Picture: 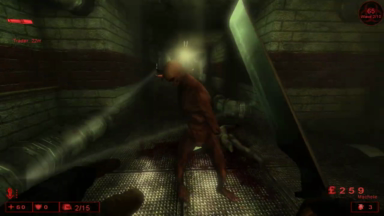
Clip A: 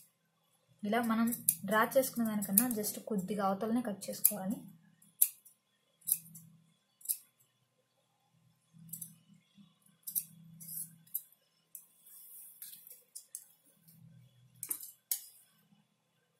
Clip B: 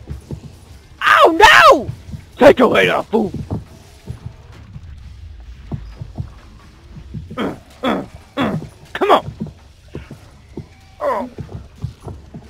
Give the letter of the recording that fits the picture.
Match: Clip B